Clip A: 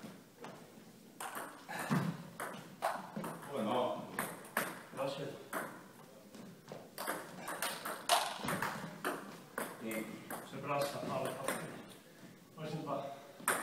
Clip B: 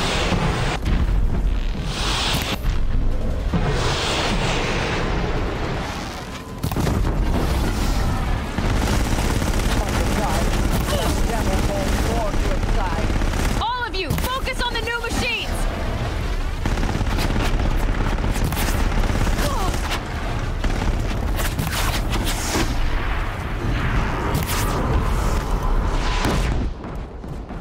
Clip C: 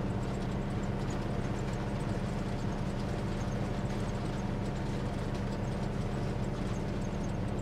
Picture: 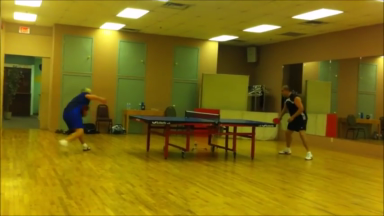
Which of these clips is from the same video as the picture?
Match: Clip A